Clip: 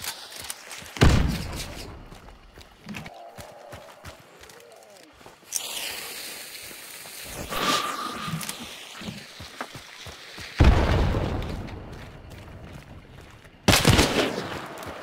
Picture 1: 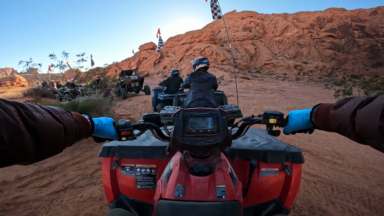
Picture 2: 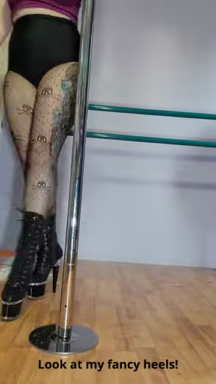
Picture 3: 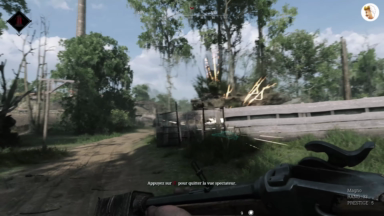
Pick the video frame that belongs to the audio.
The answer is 3